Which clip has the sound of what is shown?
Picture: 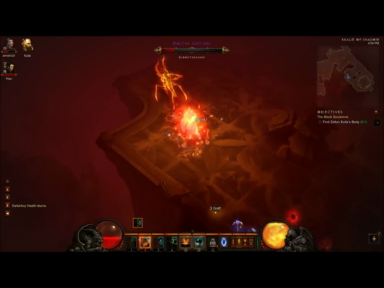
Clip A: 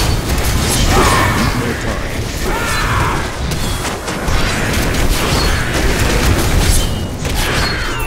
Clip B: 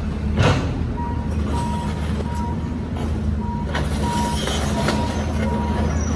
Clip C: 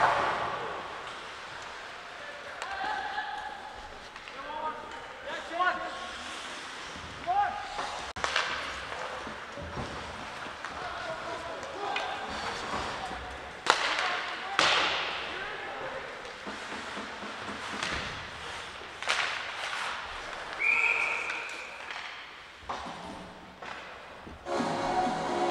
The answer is A